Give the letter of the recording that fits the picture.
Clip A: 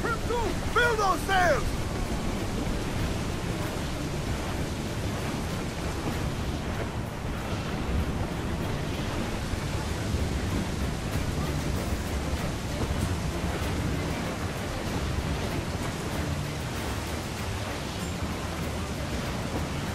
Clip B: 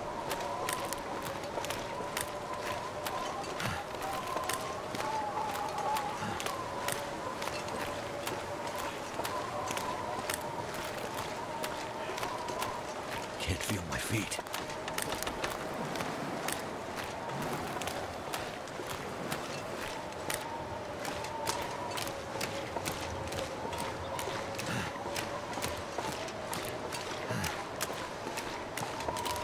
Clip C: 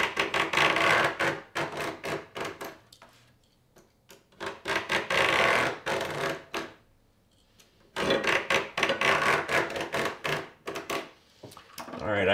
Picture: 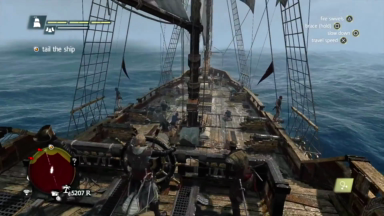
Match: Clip A